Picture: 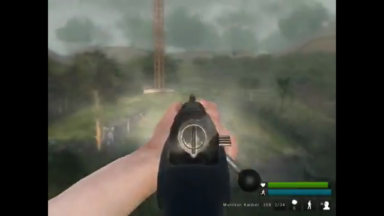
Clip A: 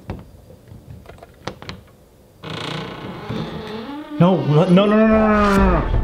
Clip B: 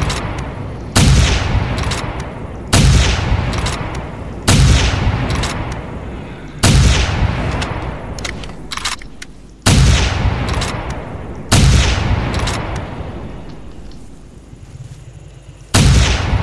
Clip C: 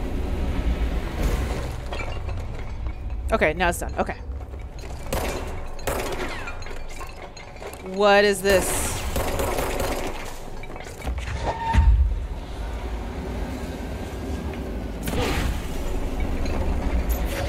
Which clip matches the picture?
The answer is B